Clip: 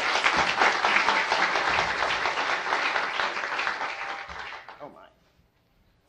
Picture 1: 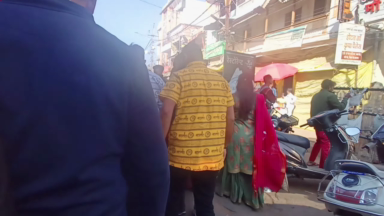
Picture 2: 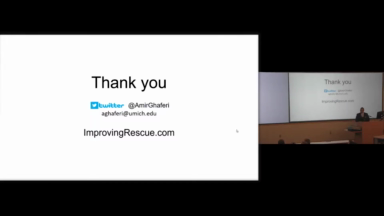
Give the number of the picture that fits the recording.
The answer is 2